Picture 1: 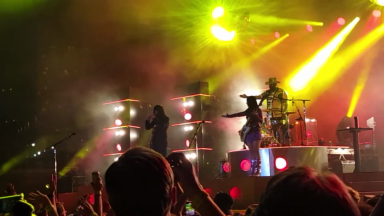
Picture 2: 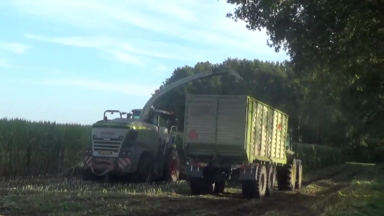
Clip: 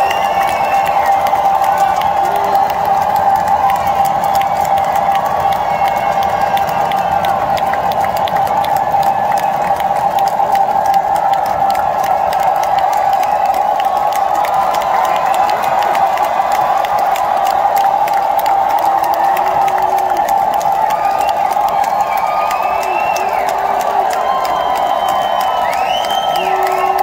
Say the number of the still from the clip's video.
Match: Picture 1